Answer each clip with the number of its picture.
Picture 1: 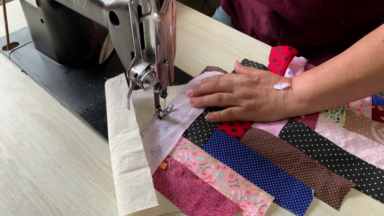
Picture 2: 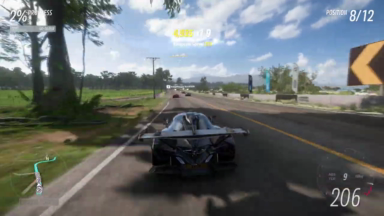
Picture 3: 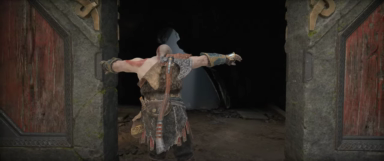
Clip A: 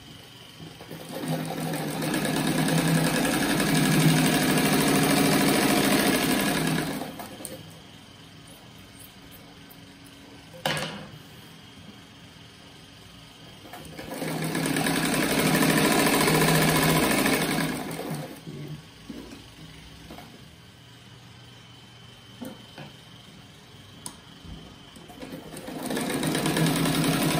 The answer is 1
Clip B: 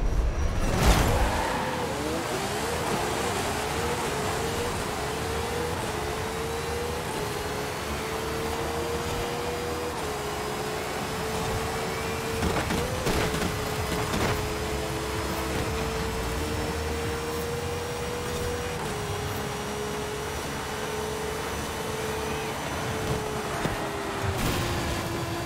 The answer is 2